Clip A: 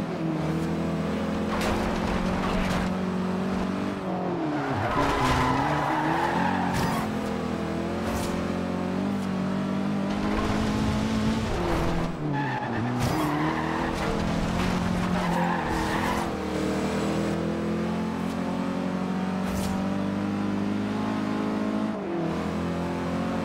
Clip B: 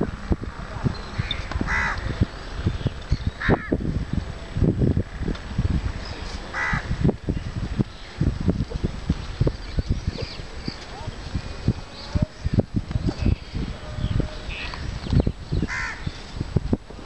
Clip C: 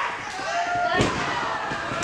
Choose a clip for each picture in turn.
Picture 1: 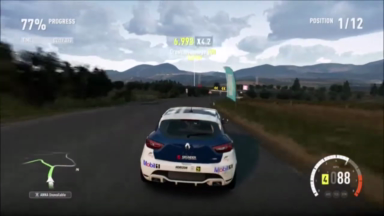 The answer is A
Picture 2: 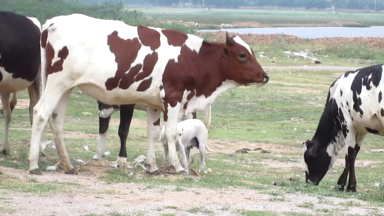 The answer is B